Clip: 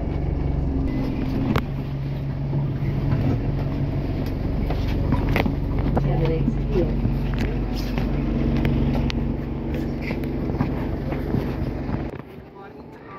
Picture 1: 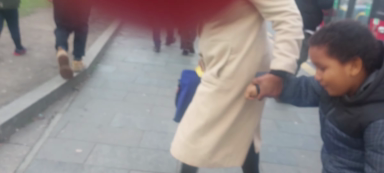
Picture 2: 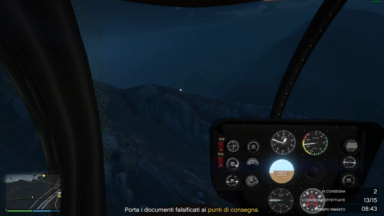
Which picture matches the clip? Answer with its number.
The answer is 1